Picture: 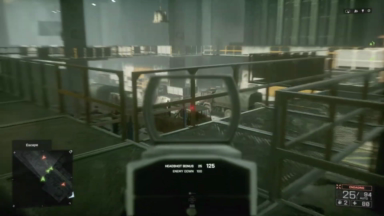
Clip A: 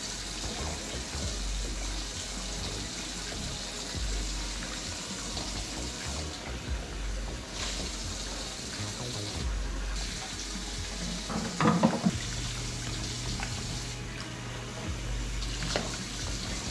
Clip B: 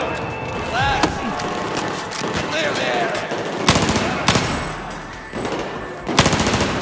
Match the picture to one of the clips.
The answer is B